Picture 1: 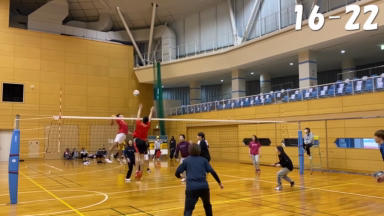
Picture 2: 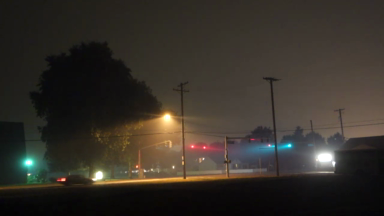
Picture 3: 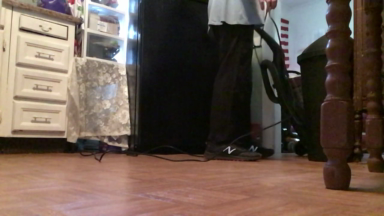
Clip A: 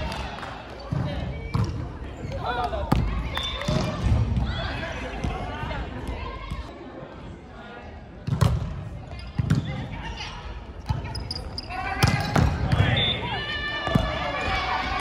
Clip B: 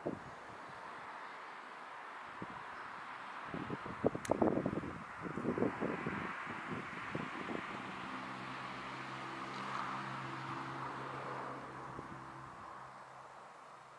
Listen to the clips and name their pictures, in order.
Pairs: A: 1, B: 2